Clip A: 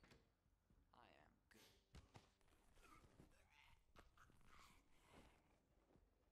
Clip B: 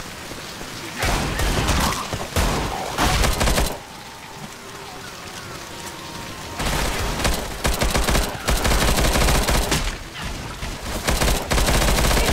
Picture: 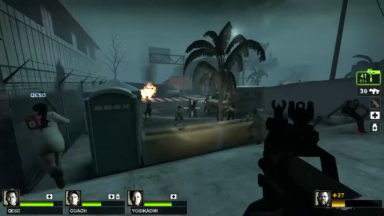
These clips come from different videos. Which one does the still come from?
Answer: B